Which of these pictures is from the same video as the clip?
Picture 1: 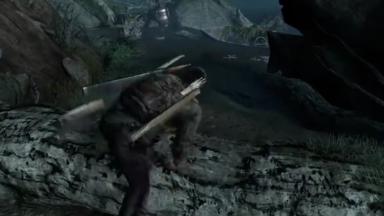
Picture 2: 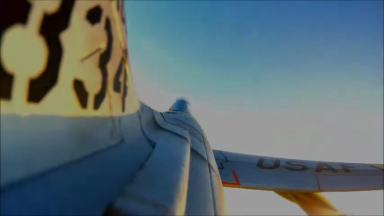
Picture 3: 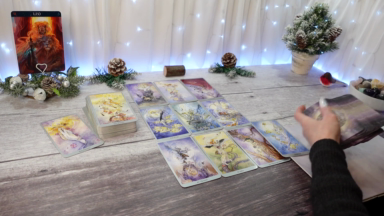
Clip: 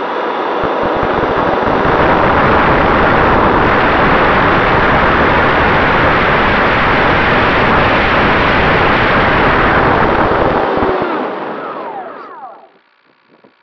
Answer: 2